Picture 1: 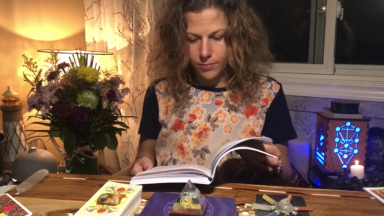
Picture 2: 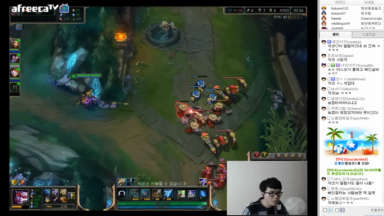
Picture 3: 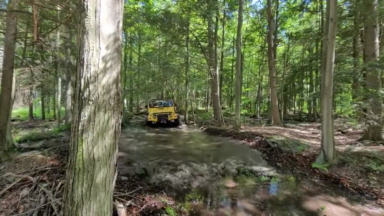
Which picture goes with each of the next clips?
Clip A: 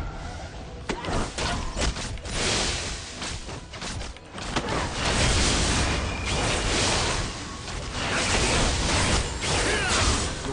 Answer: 2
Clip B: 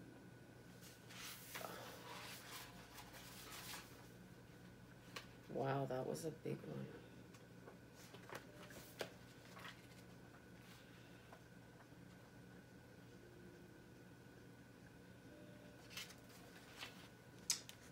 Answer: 1